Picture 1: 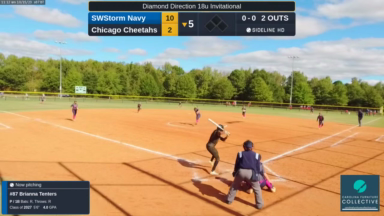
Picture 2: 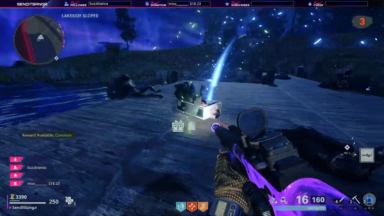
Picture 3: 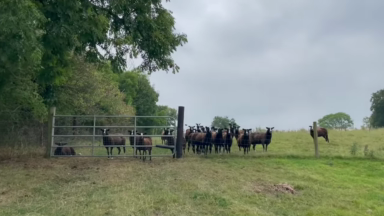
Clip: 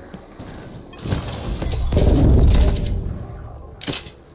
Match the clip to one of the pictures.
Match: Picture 2